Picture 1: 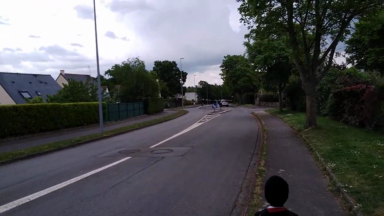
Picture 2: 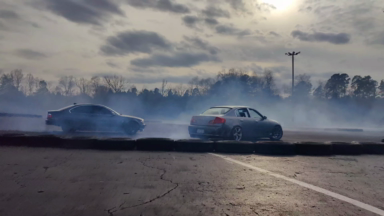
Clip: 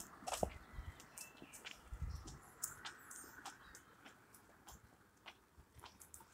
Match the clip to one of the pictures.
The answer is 1